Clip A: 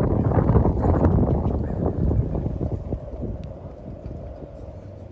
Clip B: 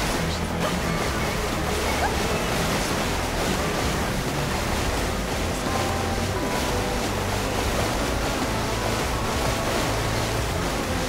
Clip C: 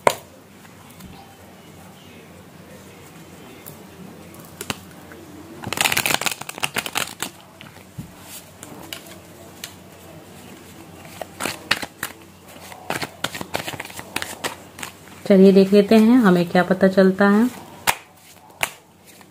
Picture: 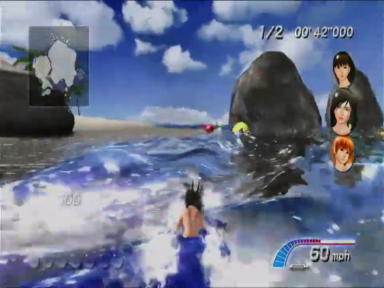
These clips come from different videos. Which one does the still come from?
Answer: B